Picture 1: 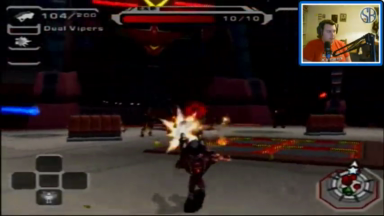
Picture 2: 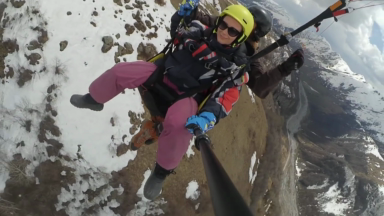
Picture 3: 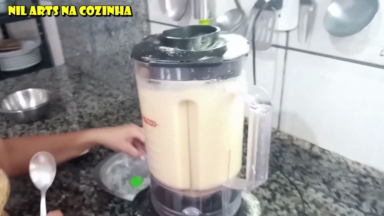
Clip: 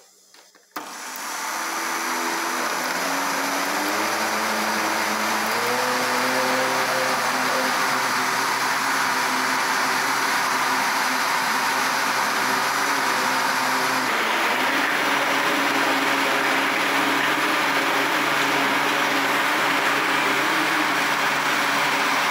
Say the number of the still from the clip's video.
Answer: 3